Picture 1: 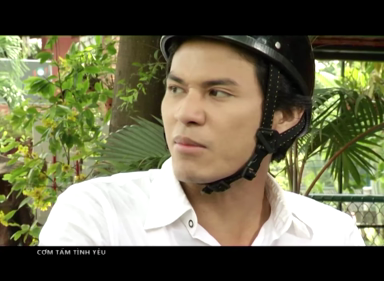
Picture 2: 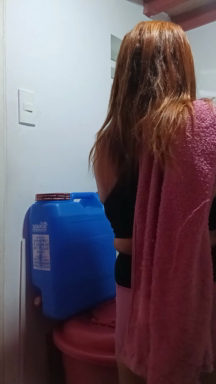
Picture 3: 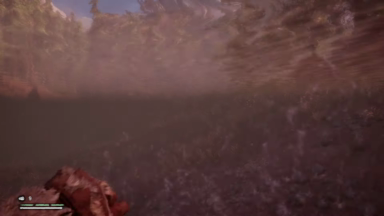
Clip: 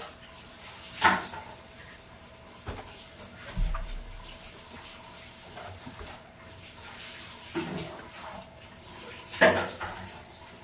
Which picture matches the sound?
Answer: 2